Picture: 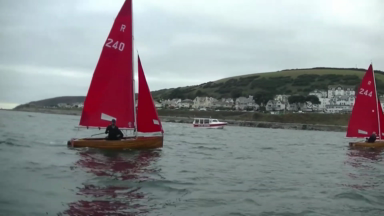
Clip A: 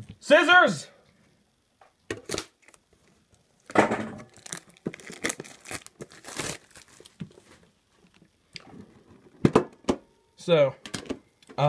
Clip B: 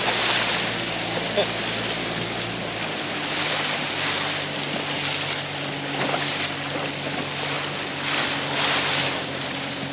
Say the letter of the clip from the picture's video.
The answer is B